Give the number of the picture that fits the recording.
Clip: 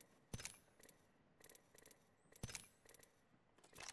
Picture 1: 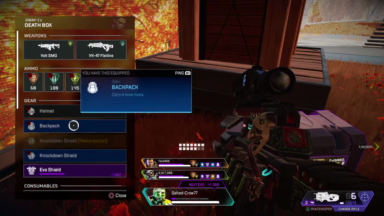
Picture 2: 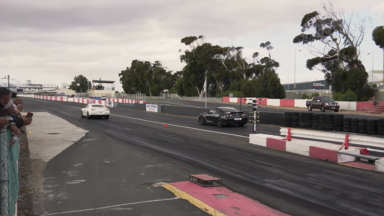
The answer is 1